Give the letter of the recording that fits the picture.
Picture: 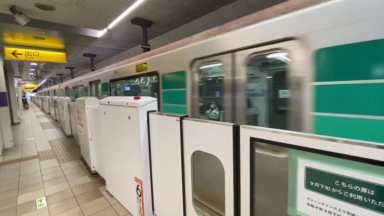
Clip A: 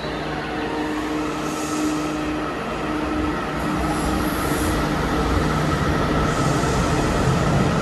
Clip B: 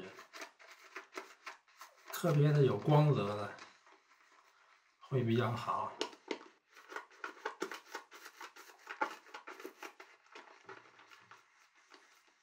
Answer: A